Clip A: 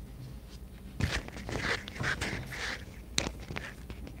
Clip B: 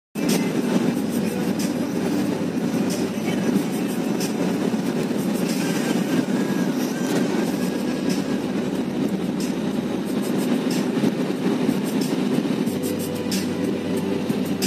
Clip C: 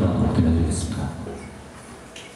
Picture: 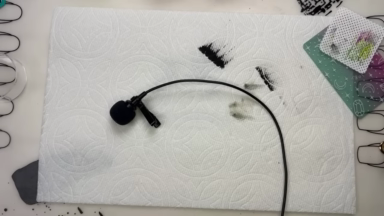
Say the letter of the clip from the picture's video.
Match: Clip A